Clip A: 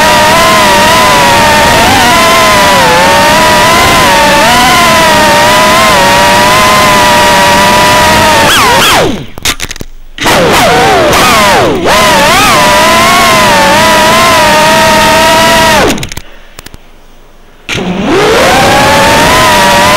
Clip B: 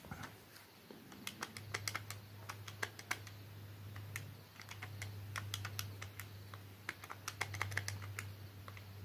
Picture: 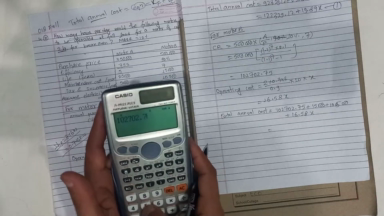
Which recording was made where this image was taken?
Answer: B